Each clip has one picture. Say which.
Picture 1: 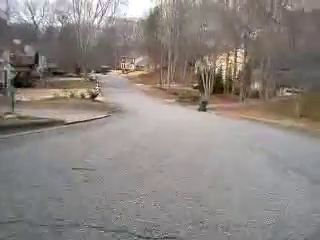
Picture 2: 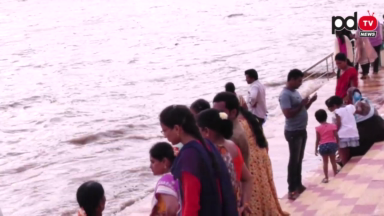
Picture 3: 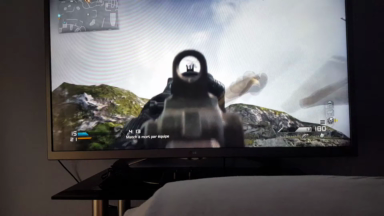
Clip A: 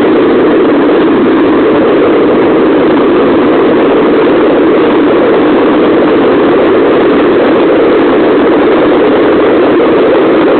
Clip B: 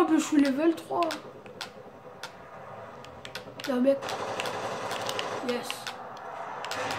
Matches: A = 1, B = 3